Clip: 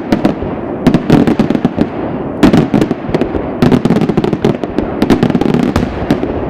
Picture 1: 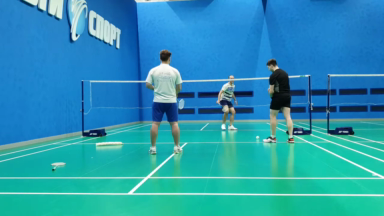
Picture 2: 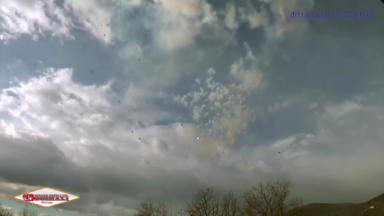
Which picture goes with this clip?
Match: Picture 2